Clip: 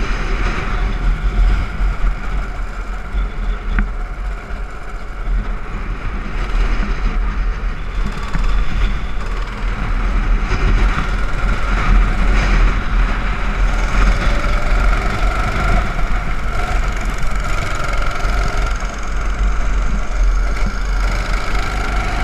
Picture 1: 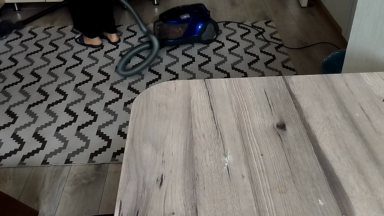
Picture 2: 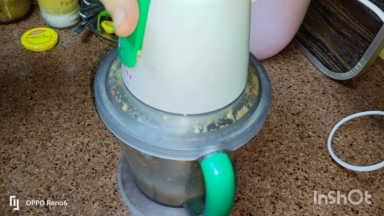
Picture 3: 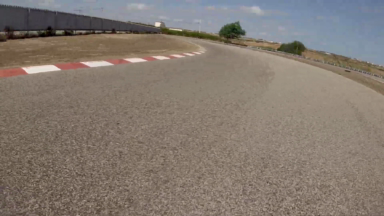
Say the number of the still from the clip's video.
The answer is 3